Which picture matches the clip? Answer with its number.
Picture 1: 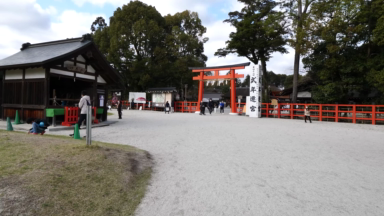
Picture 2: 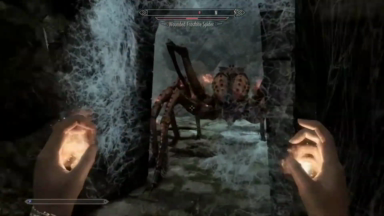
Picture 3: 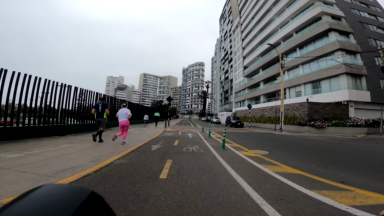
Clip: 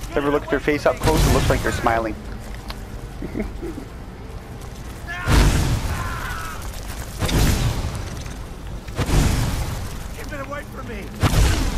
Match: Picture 2